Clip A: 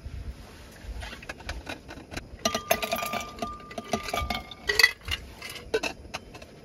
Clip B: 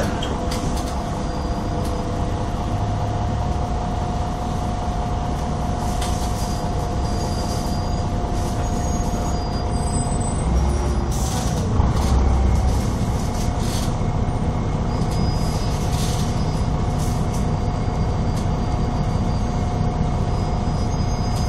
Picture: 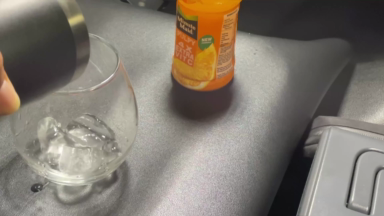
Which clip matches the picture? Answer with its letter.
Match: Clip A